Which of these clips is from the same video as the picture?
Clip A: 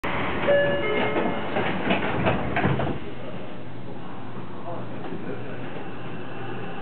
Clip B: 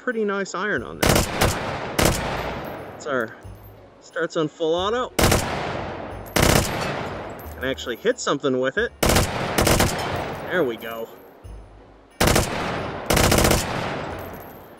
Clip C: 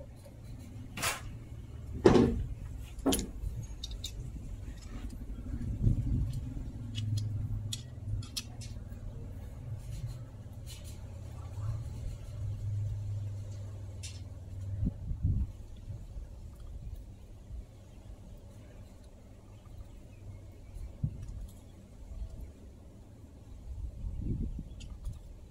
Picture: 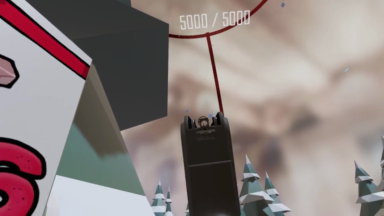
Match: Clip B